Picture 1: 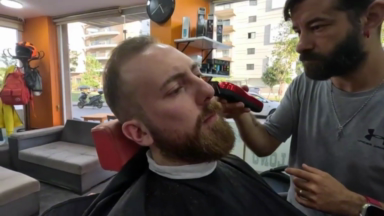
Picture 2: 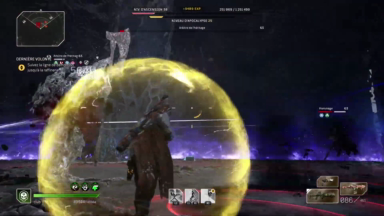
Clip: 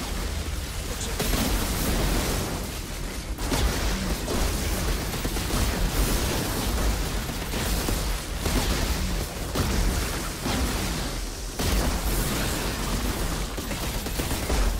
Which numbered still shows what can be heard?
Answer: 2